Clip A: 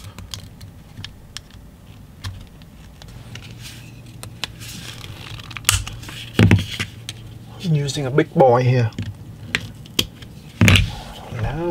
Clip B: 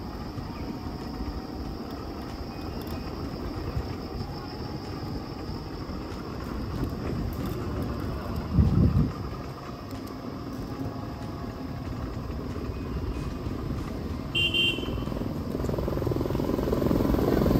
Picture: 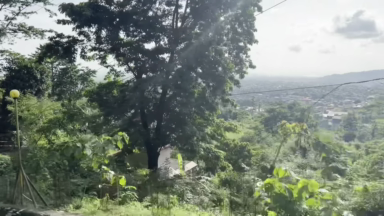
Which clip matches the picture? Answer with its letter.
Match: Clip B